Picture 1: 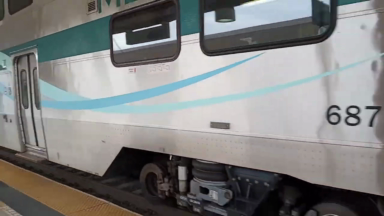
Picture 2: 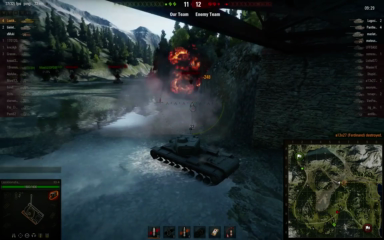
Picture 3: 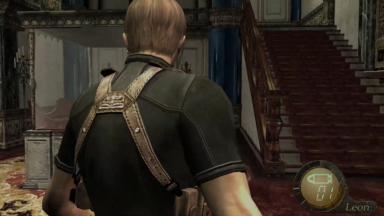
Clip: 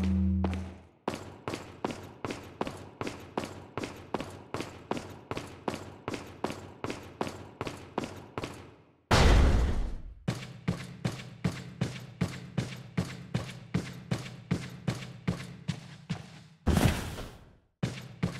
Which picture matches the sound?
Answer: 3